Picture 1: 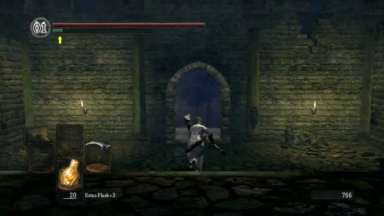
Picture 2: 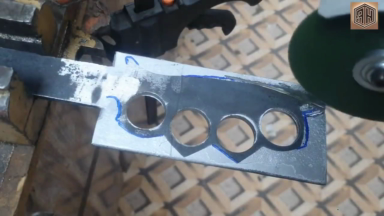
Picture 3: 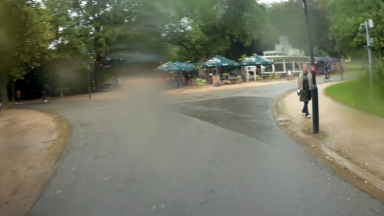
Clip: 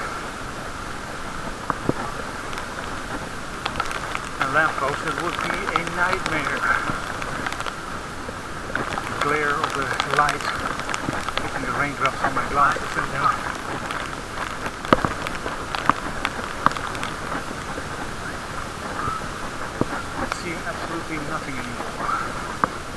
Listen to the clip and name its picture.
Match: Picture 3